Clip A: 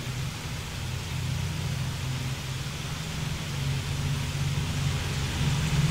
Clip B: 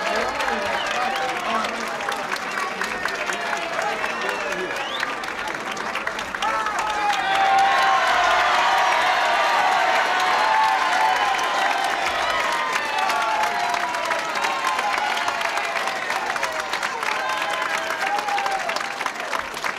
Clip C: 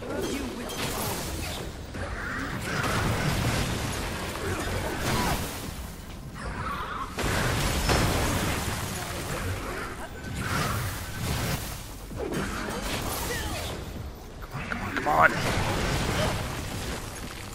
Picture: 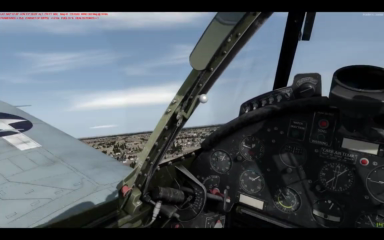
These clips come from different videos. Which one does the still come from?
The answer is A